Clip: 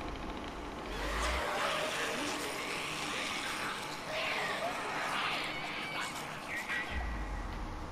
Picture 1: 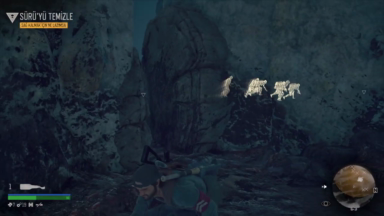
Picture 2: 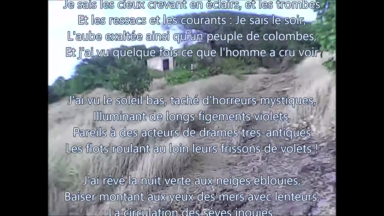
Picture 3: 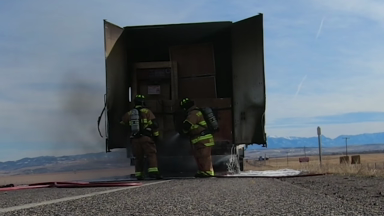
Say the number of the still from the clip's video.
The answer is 1